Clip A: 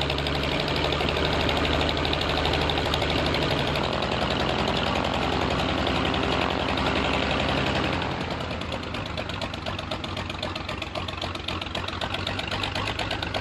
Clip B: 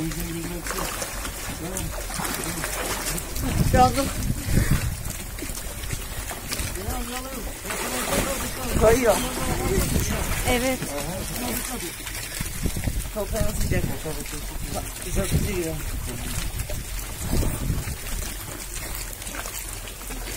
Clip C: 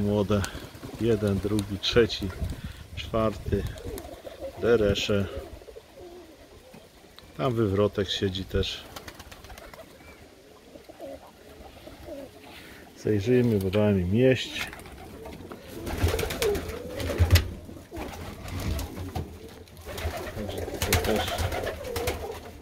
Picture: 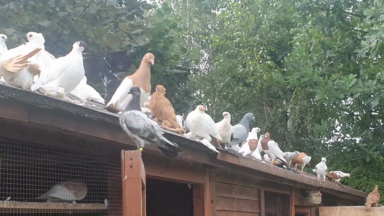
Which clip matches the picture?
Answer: C